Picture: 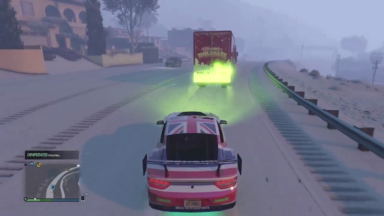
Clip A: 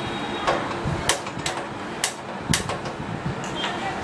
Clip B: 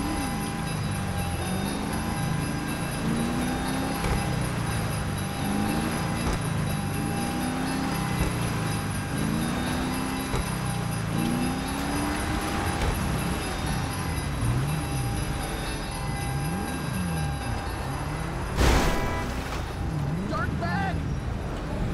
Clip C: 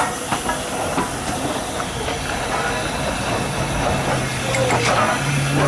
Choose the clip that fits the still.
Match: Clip B